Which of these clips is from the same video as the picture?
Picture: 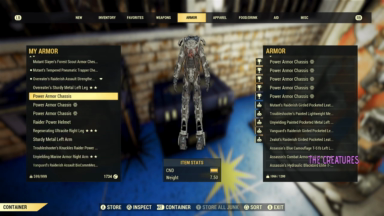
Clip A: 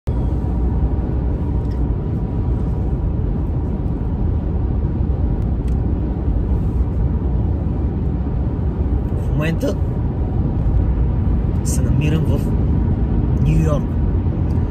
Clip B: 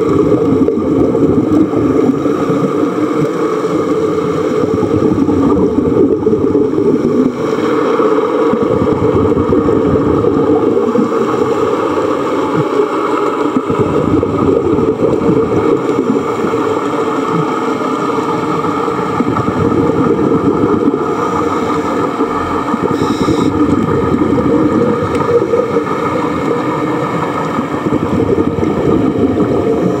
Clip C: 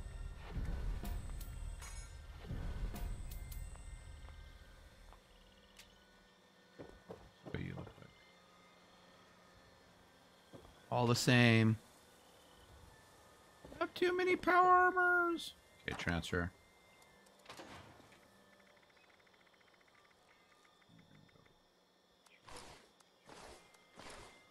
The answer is C